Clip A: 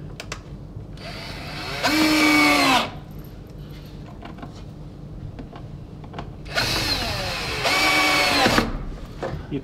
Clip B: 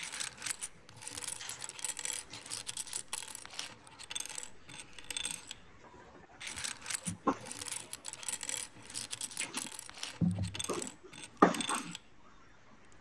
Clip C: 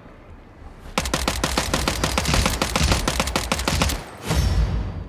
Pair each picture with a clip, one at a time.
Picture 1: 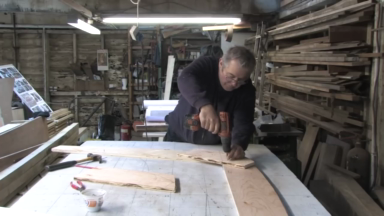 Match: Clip A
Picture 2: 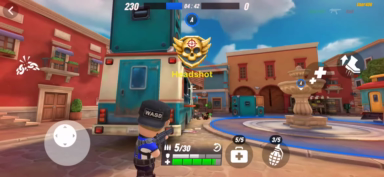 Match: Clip C